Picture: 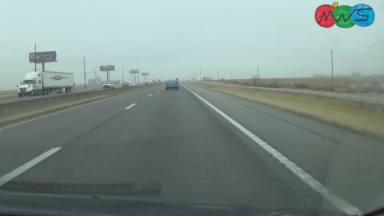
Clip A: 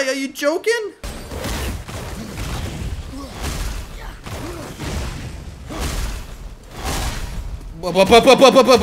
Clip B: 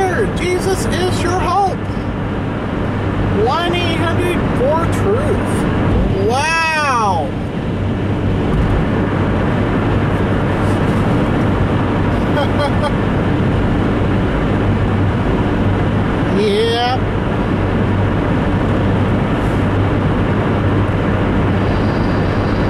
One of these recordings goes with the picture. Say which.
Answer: B